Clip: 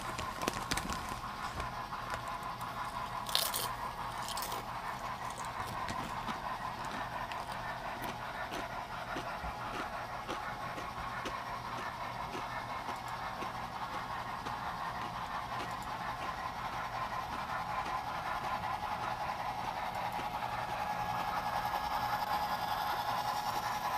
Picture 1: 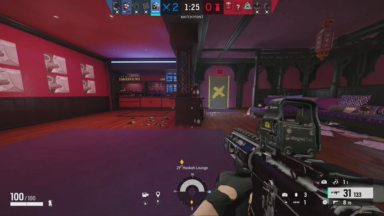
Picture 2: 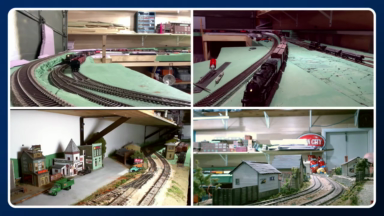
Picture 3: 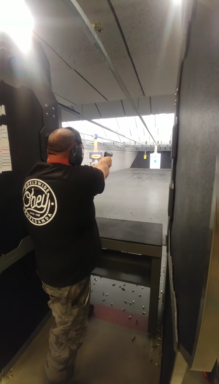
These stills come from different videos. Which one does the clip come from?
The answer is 2